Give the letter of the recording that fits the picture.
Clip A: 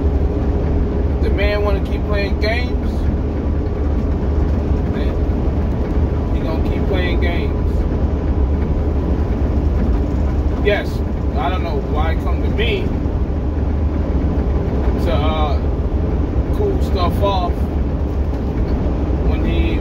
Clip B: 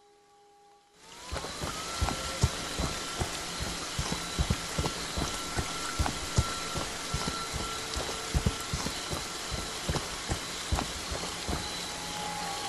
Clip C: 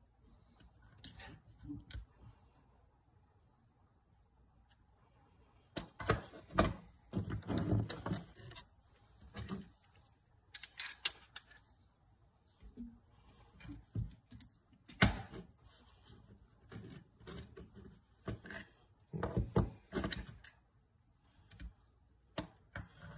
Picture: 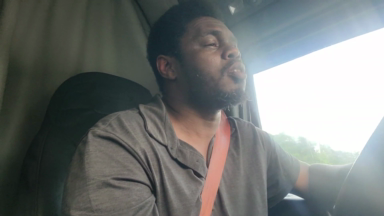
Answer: A